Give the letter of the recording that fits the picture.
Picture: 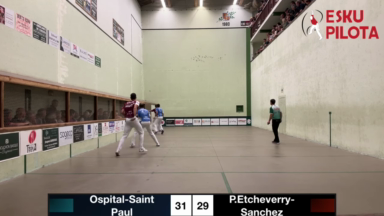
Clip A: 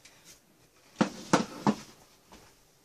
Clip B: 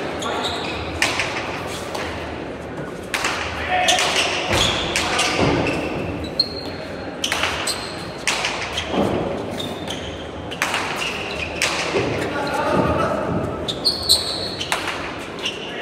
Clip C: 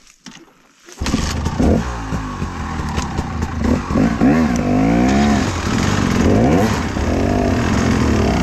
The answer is B